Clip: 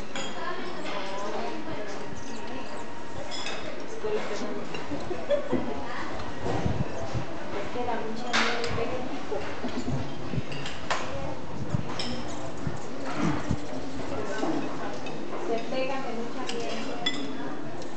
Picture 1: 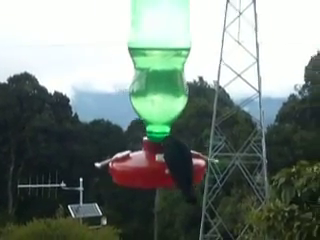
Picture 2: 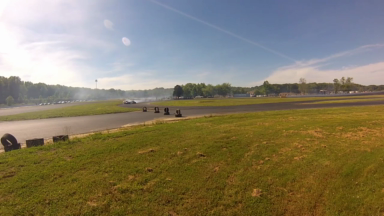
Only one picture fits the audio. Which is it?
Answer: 1